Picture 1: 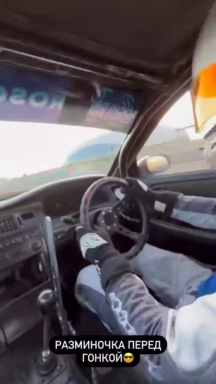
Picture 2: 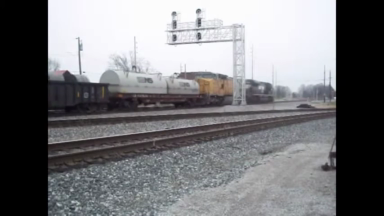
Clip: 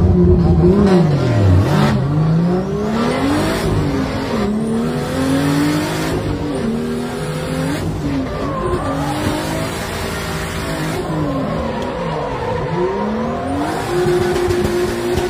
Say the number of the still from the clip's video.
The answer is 1